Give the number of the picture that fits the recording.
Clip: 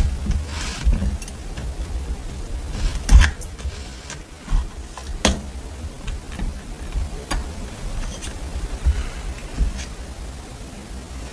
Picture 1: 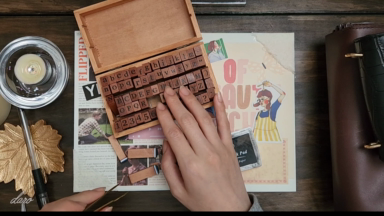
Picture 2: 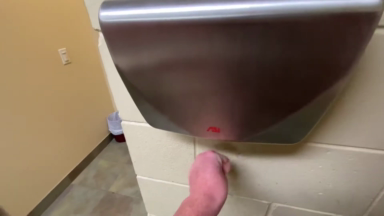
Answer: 1